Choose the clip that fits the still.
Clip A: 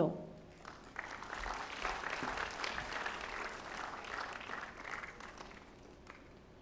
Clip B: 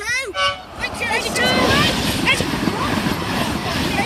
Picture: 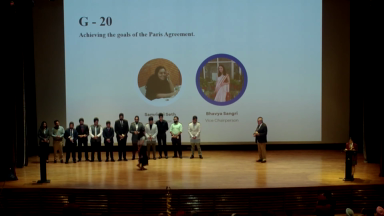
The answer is A